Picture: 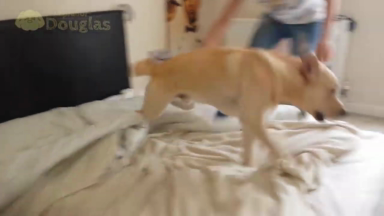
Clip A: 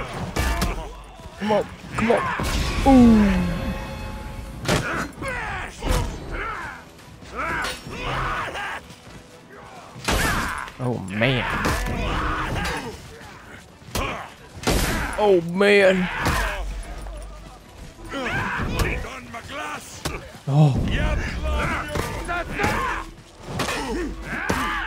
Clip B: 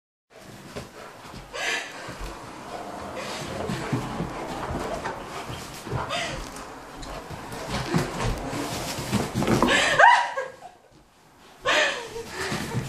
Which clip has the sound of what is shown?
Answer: B